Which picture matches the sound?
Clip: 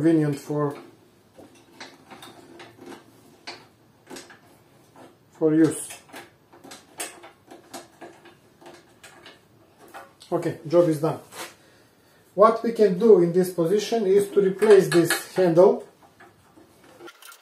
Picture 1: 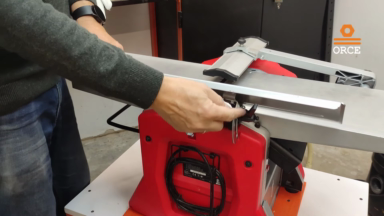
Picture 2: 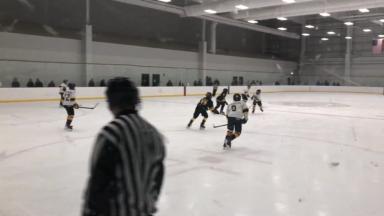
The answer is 1